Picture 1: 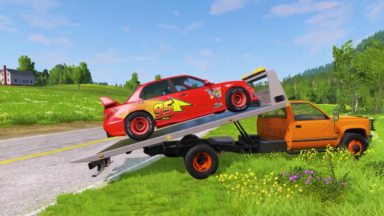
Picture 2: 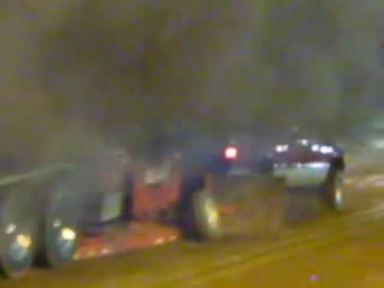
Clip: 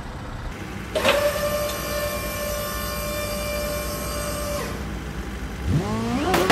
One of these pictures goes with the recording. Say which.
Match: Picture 1